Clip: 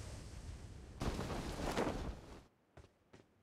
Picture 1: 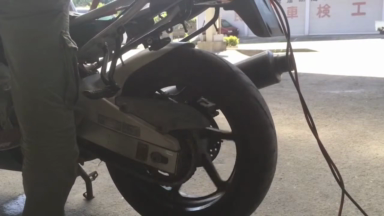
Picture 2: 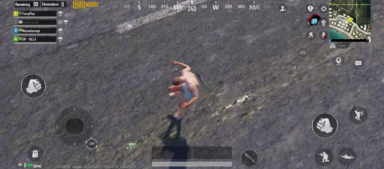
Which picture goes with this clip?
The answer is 2